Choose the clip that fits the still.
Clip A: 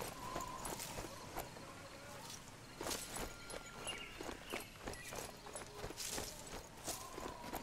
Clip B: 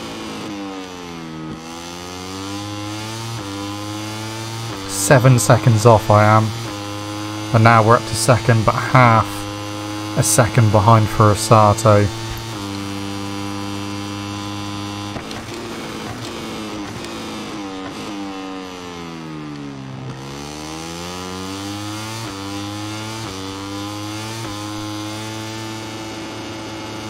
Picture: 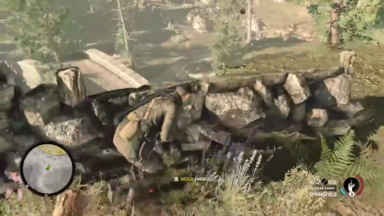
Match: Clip A